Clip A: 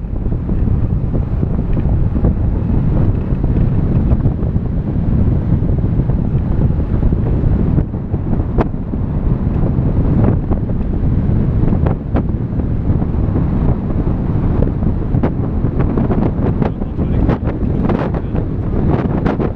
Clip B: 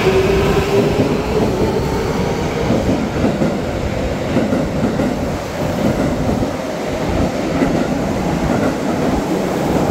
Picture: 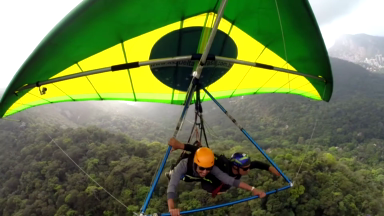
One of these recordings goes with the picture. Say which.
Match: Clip A